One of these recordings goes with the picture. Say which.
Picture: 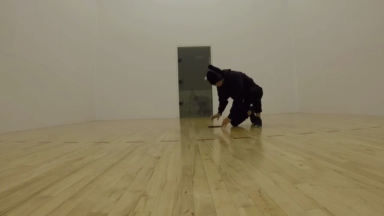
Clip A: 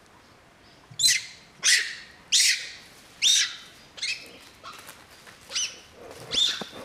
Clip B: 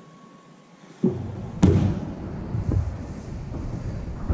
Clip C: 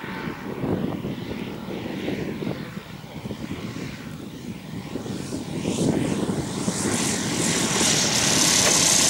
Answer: B